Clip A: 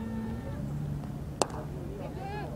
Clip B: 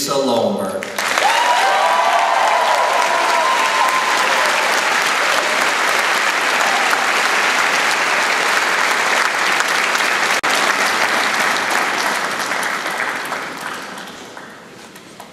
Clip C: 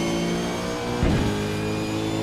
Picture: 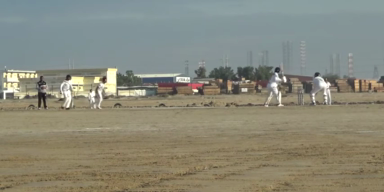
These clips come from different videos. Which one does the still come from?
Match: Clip A